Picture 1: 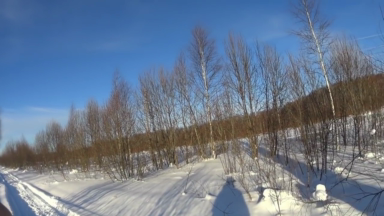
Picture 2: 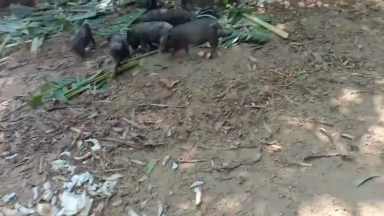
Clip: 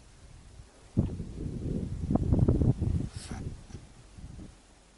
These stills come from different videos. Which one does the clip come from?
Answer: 1